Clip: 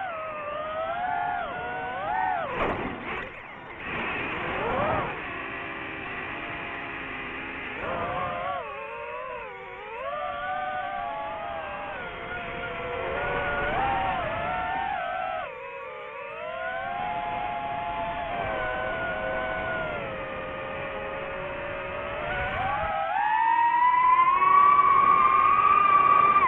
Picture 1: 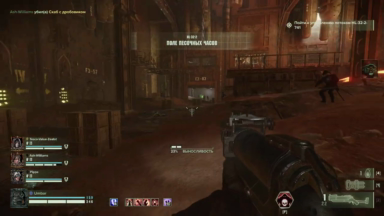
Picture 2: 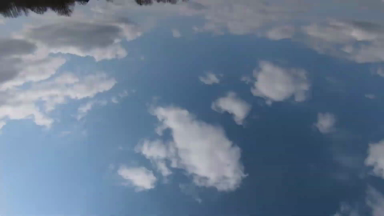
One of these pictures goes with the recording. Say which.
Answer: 2